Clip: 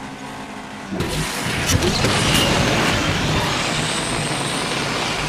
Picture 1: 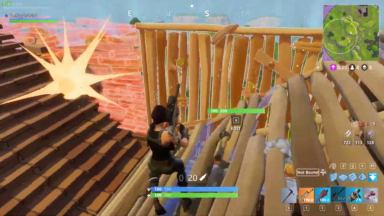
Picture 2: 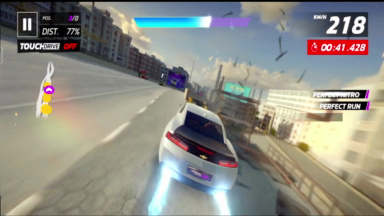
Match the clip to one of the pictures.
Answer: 2